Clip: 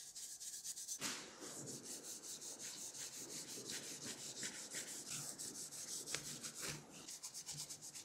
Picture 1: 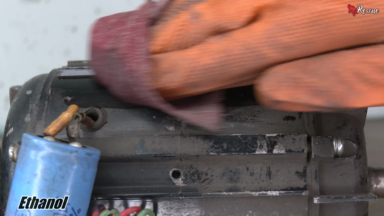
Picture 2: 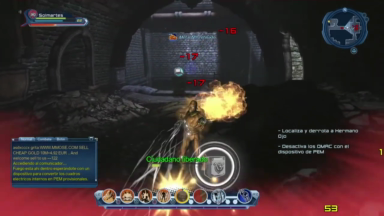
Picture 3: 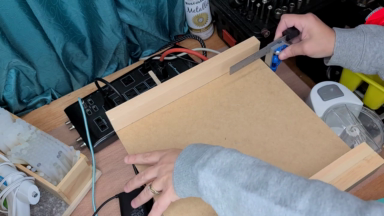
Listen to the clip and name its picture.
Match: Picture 1